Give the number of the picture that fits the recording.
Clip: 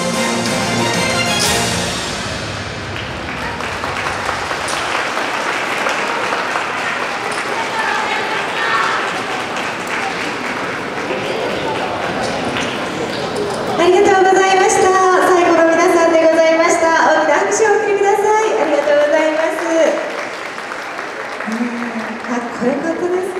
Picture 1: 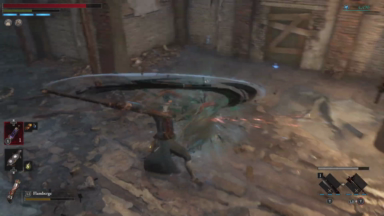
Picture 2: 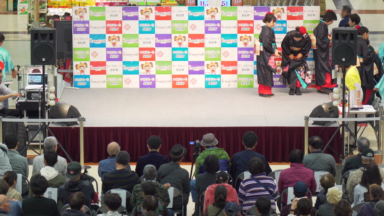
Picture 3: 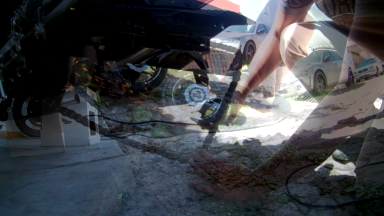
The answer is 2